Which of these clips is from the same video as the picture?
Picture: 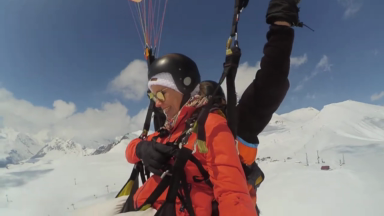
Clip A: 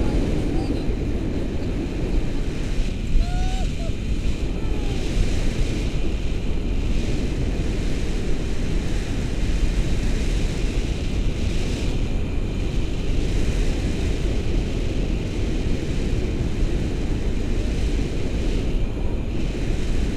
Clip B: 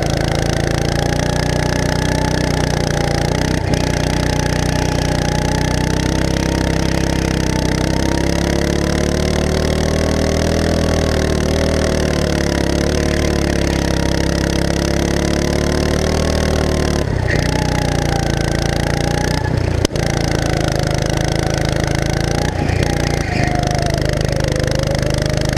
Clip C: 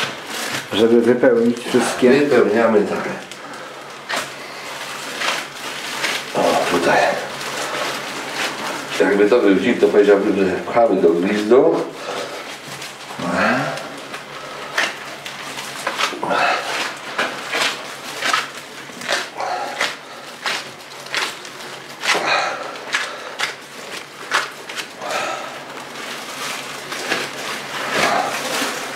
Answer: A